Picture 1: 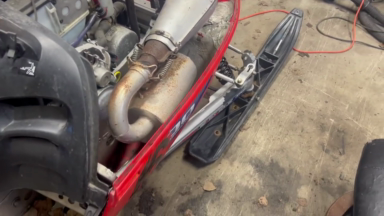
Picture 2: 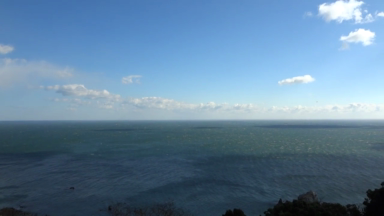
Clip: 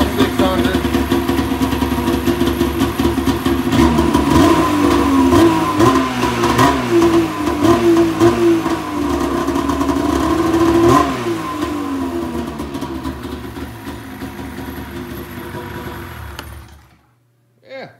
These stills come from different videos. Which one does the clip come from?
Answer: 1